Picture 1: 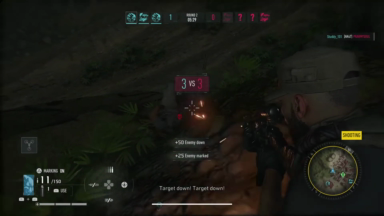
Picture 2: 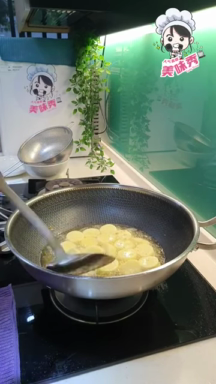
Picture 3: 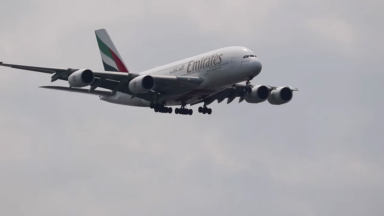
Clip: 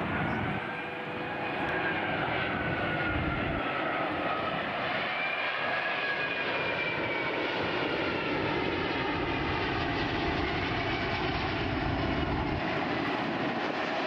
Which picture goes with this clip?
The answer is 3